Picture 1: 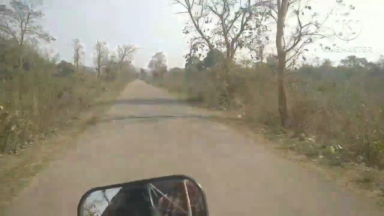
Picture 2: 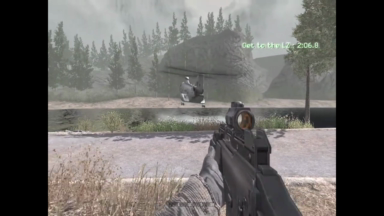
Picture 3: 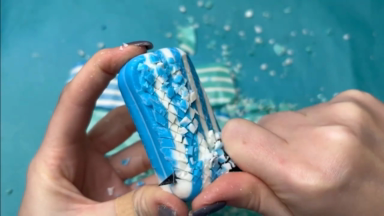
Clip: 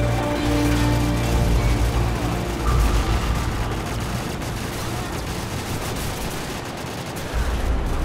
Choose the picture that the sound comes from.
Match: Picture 2